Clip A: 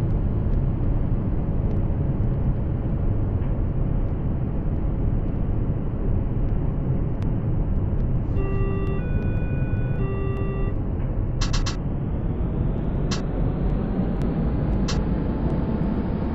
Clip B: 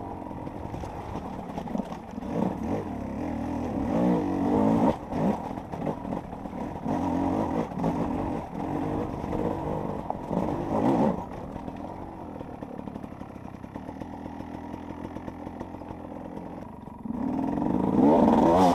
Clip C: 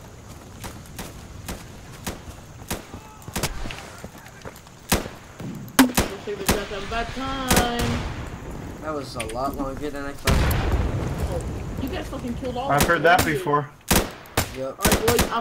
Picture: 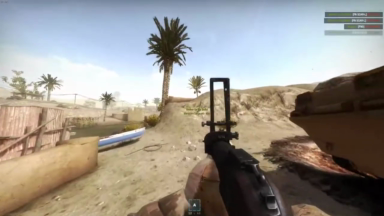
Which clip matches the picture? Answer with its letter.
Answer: C